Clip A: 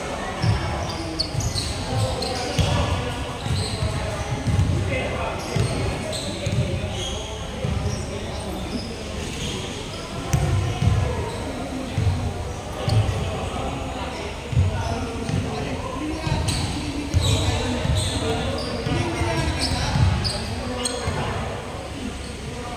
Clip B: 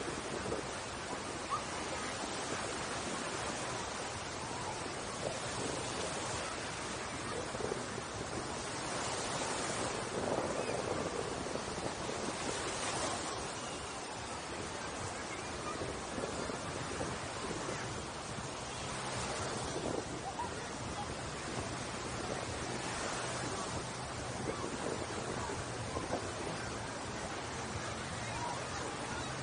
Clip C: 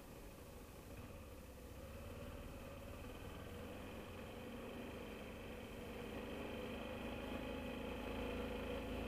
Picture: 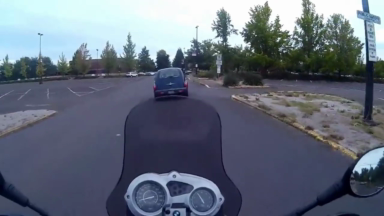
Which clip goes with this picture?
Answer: C